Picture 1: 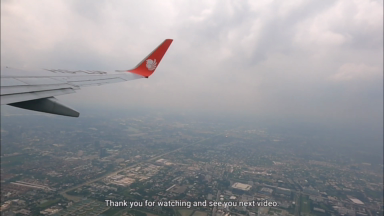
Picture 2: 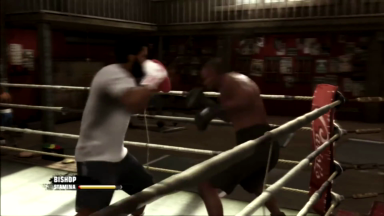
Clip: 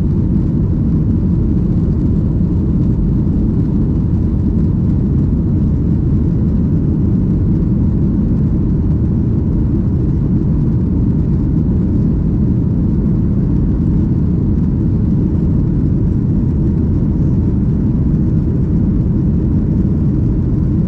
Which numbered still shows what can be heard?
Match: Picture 1